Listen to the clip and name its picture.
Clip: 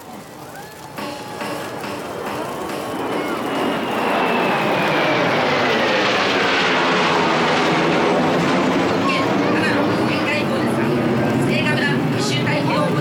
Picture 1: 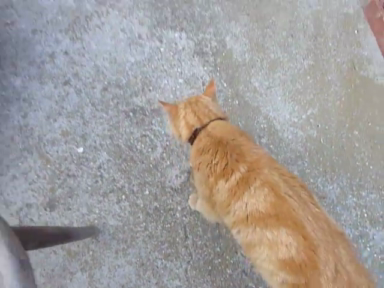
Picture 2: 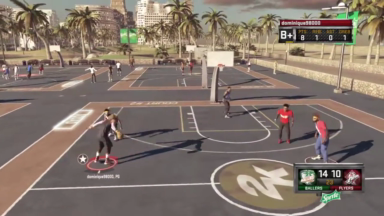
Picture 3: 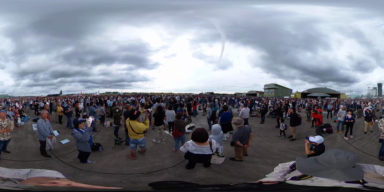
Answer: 3